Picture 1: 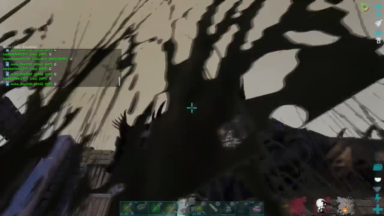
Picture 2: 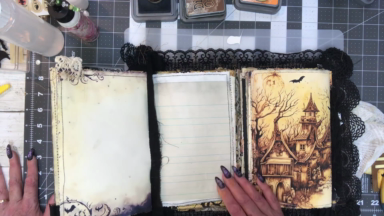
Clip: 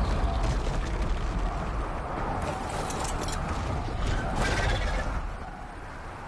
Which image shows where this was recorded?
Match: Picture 1